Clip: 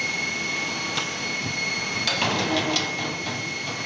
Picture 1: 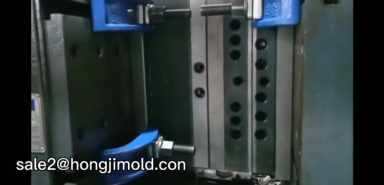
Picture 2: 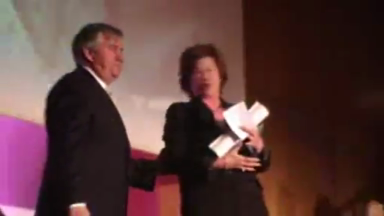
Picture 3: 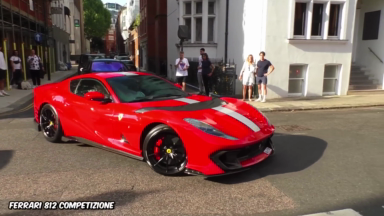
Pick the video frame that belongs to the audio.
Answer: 1